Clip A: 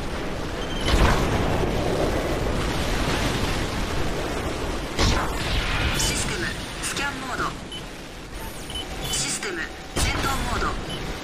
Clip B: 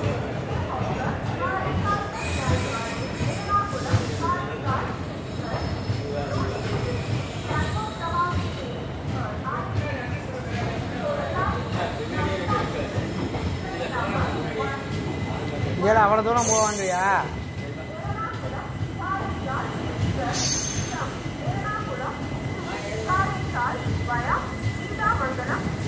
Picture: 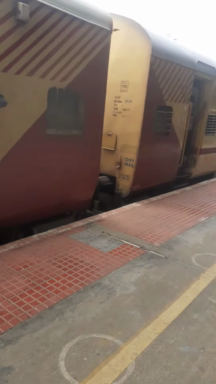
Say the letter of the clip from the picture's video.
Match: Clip B